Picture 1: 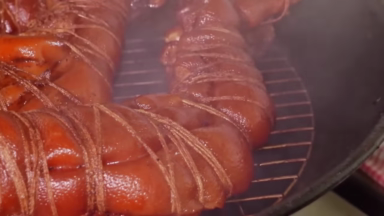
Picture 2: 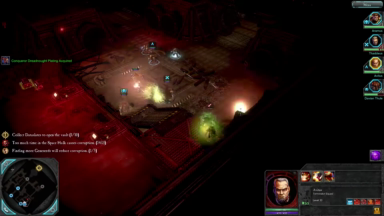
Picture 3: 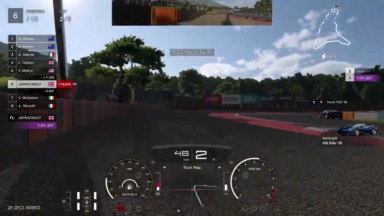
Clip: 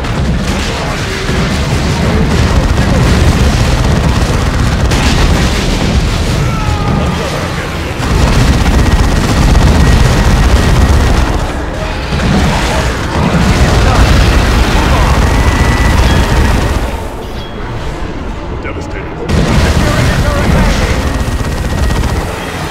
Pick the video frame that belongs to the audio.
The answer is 2